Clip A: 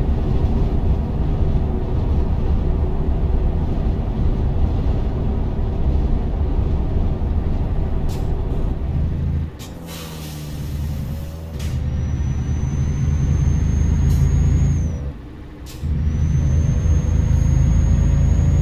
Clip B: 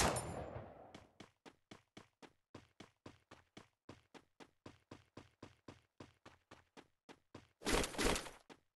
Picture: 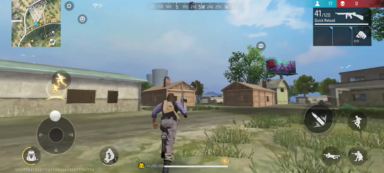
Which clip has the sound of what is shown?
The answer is B